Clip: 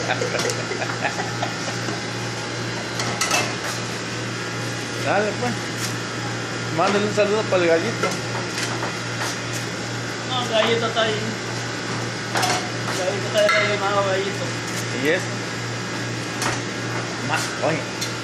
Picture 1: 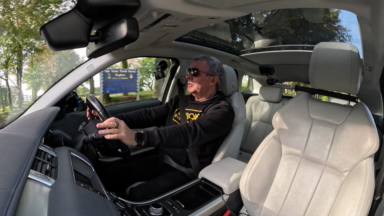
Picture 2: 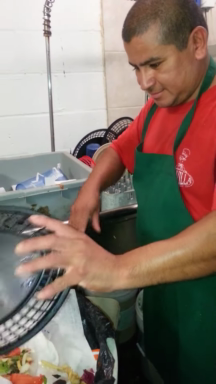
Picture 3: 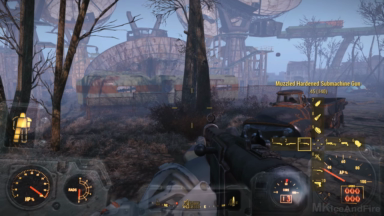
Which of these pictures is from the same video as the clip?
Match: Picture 2